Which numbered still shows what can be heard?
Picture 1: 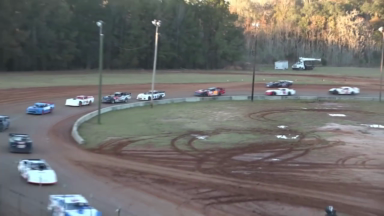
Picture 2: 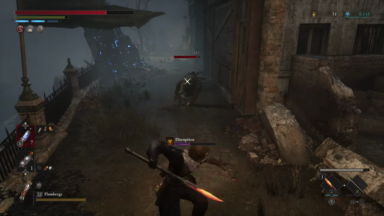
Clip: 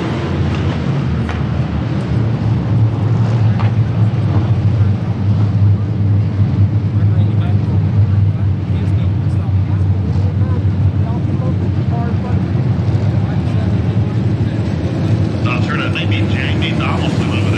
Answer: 1